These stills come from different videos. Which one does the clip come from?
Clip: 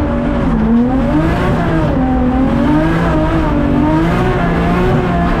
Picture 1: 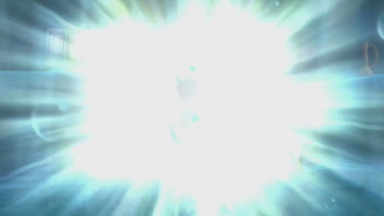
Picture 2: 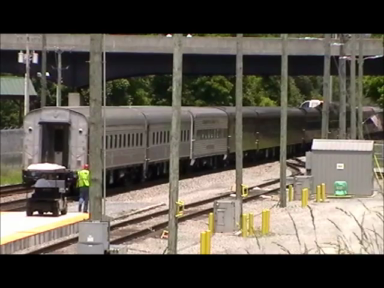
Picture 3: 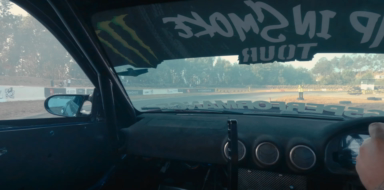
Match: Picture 3